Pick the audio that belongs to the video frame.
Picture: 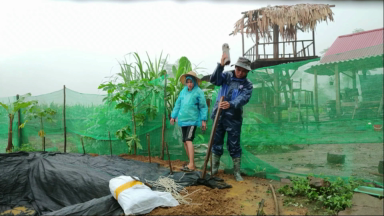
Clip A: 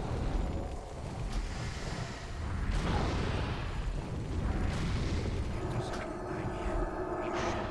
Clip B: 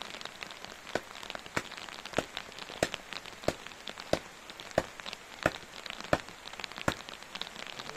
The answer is B